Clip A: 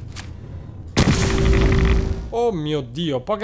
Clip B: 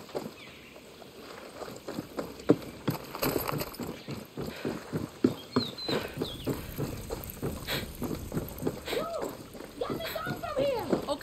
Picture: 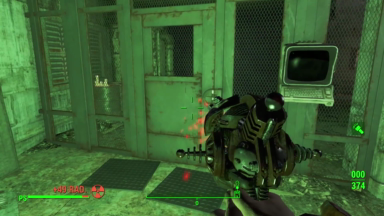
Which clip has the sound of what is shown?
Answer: A